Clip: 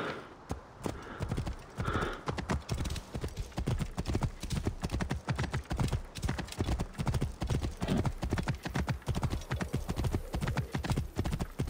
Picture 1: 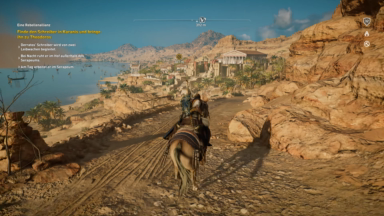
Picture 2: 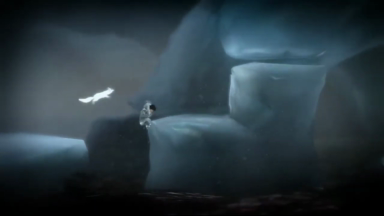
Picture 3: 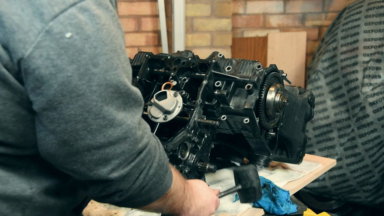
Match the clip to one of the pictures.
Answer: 1